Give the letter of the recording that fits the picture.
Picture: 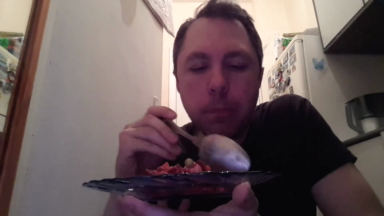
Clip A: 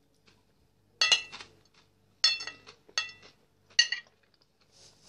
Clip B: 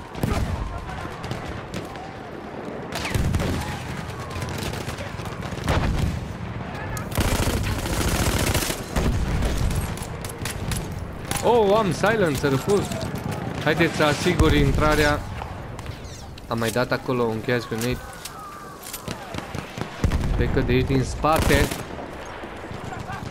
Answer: A